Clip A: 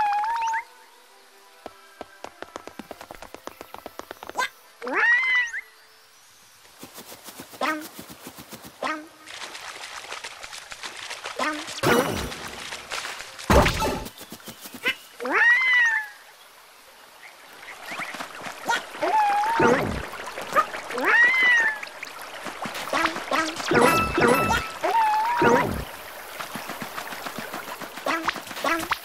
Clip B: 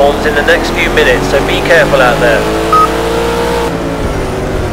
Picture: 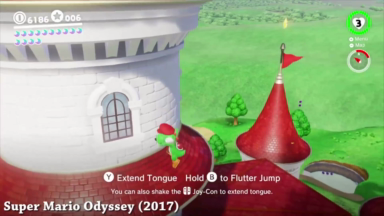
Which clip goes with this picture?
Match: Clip A